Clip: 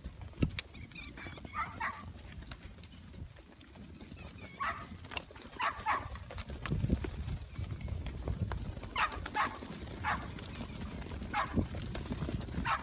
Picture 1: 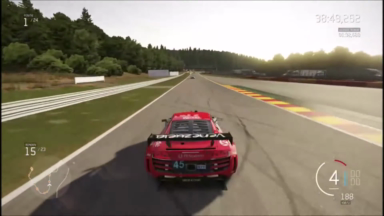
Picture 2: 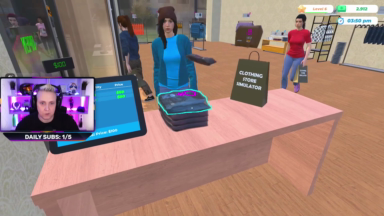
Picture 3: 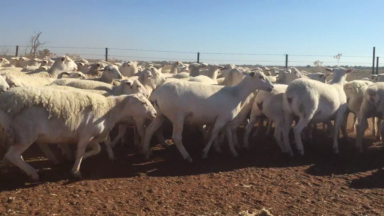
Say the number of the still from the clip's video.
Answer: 3